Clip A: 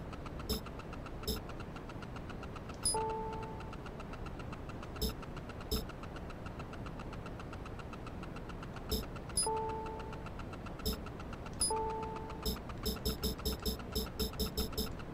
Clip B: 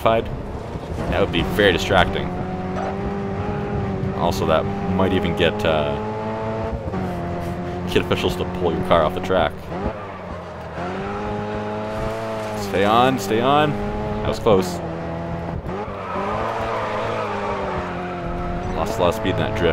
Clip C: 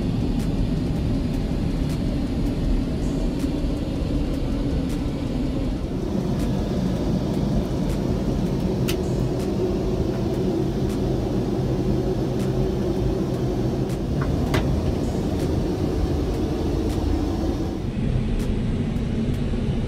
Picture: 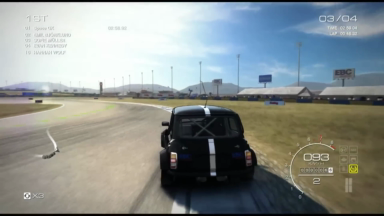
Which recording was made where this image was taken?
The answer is B